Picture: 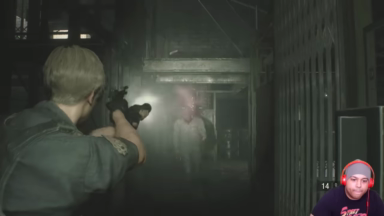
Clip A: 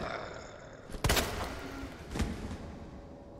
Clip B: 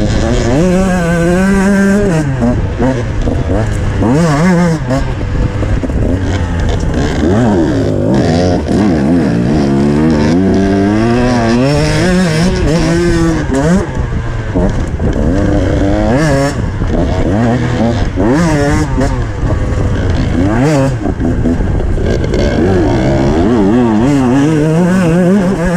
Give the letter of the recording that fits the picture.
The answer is A